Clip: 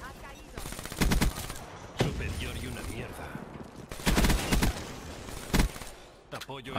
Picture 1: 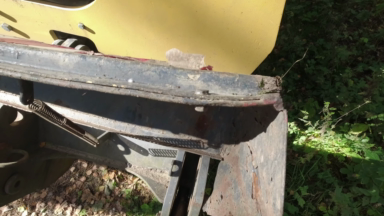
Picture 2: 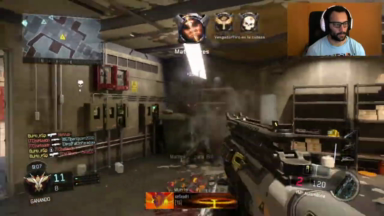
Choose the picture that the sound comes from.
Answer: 2